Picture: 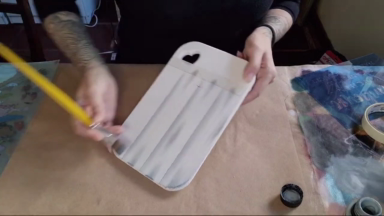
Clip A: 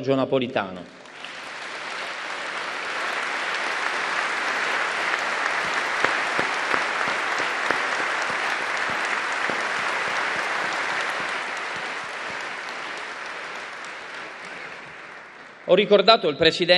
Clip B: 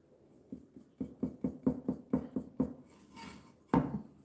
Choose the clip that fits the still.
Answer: B